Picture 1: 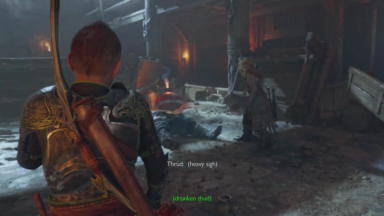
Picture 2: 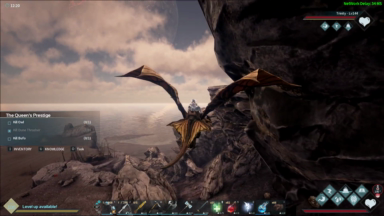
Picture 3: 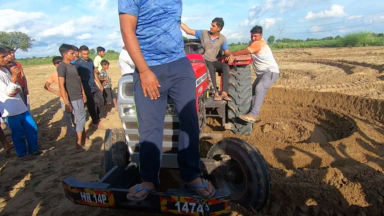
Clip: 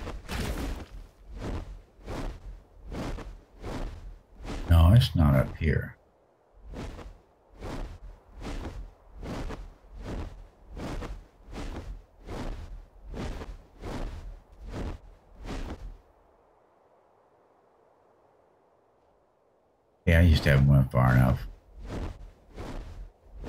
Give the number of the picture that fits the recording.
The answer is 2